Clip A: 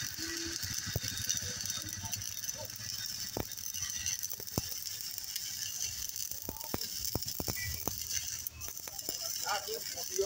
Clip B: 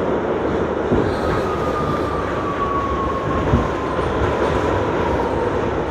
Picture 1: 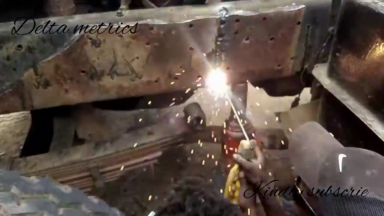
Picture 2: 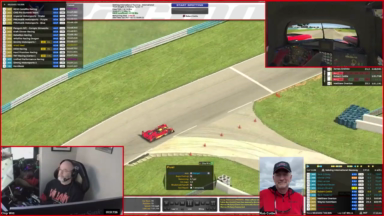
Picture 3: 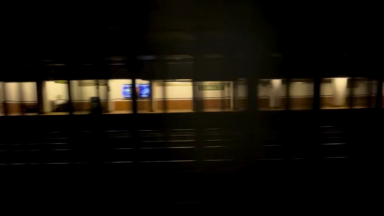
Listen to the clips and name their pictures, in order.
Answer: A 1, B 3